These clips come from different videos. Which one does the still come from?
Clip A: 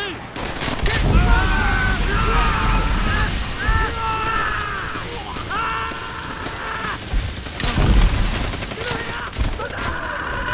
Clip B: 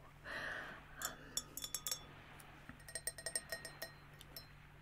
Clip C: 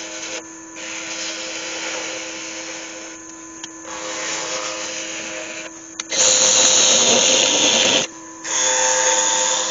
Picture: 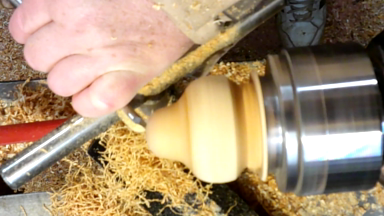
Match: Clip C